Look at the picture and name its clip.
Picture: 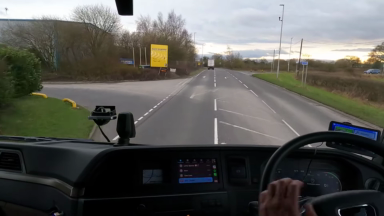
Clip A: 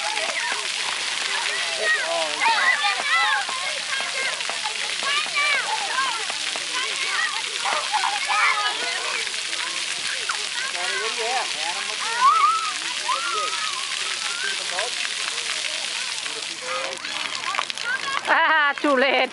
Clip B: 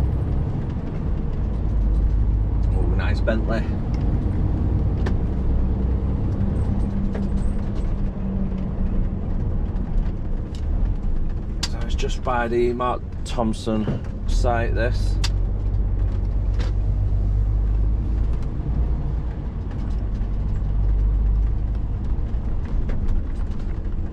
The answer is B